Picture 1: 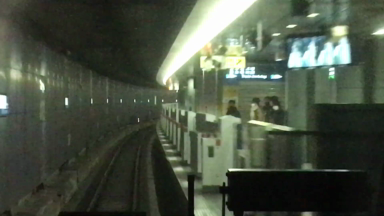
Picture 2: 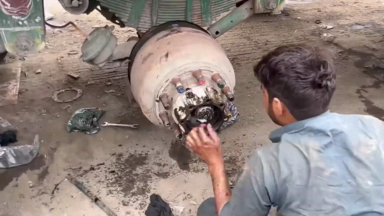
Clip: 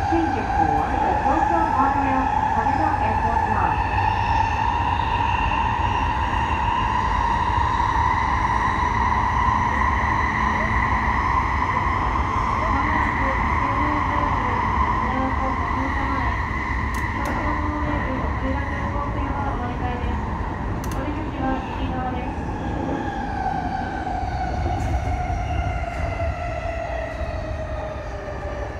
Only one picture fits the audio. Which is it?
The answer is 1